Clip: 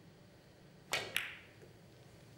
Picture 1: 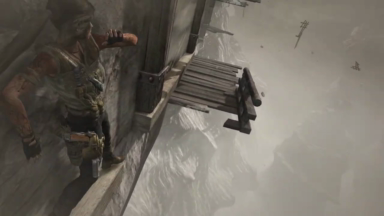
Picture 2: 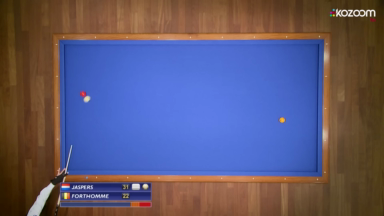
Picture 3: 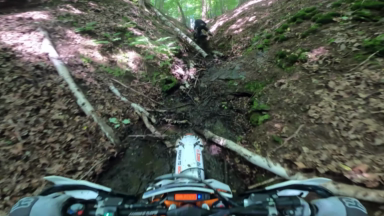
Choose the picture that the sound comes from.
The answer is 2